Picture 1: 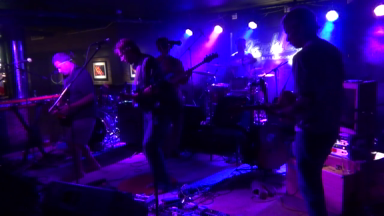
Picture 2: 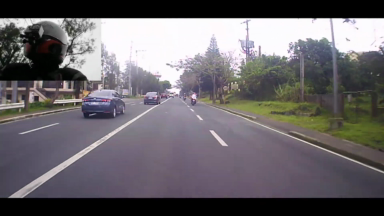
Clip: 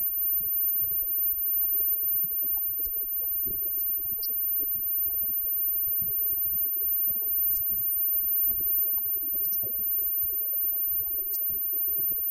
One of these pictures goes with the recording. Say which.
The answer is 1